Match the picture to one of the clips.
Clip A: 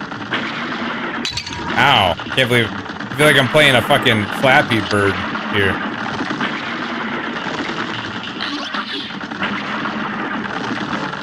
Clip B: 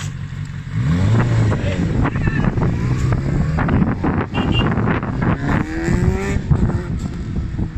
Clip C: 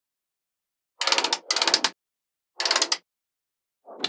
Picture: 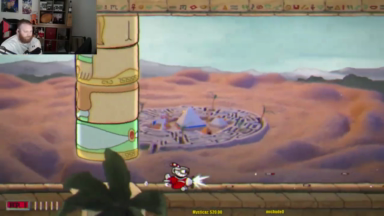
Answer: A